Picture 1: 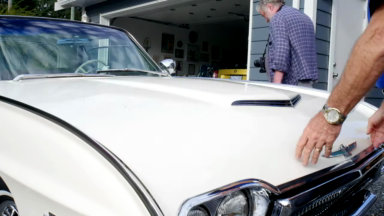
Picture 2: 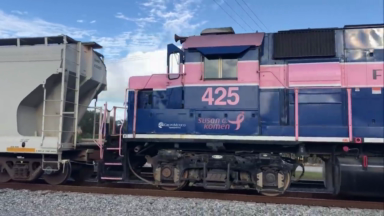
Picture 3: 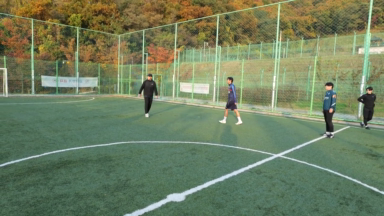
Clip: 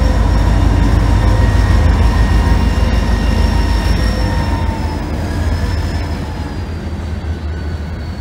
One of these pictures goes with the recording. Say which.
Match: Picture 2